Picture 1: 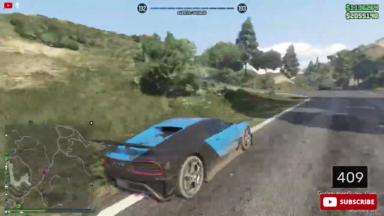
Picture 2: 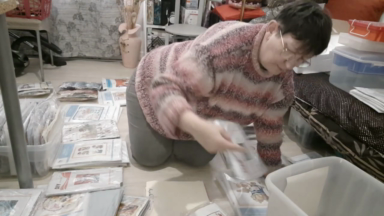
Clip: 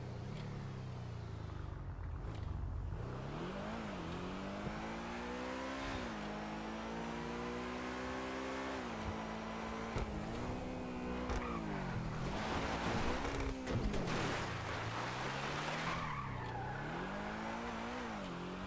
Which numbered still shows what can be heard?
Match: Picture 1